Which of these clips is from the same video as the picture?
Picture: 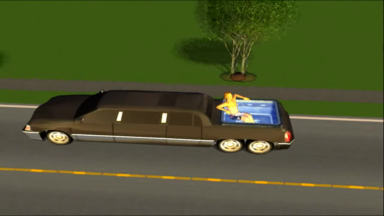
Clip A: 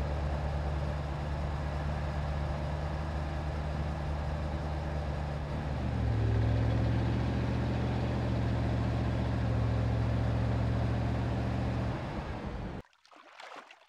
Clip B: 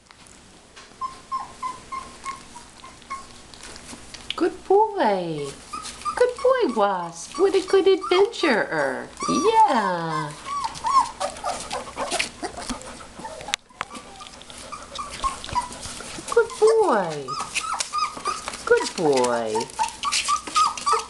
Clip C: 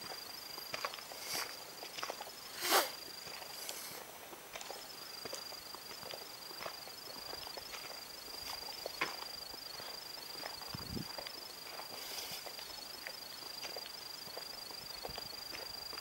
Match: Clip A